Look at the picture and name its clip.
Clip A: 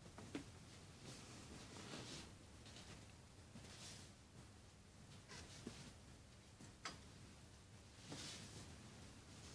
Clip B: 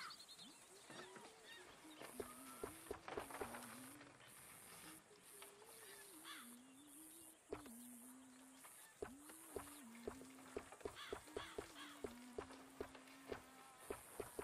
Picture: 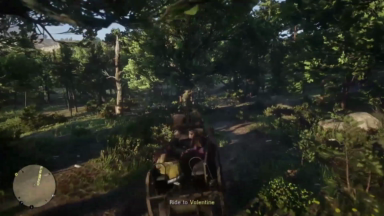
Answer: B